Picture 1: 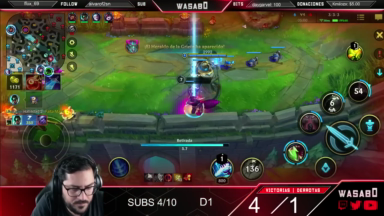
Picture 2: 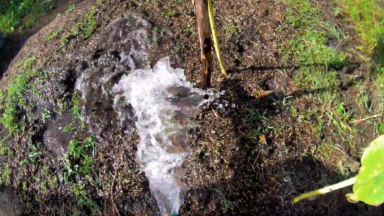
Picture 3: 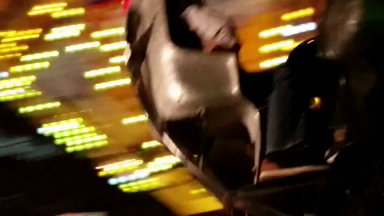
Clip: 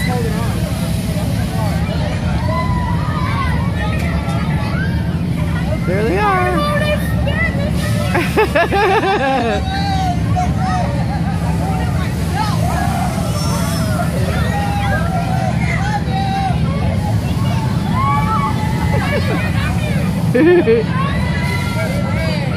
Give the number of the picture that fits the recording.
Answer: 3